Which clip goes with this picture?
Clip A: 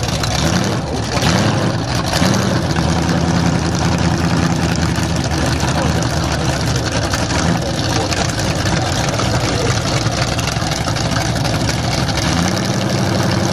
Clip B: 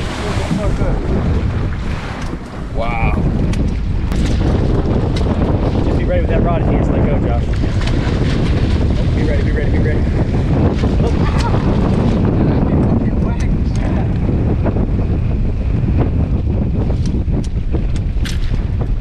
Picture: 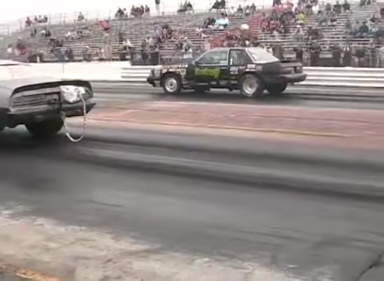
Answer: A